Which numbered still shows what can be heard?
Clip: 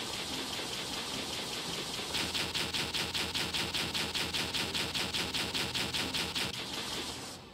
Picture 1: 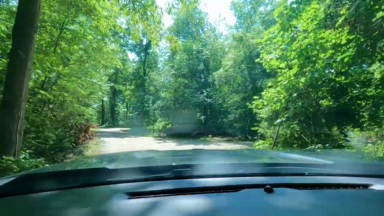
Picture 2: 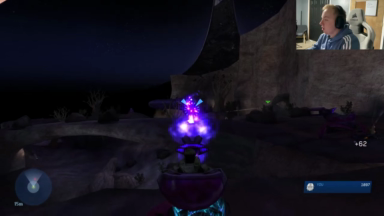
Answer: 2